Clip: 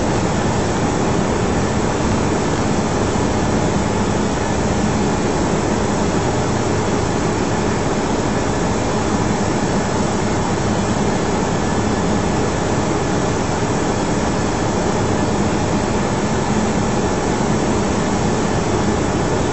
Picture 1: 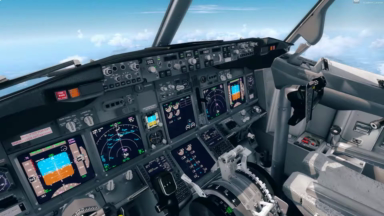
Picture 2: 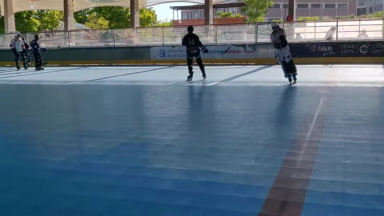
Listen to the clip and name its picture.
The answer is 1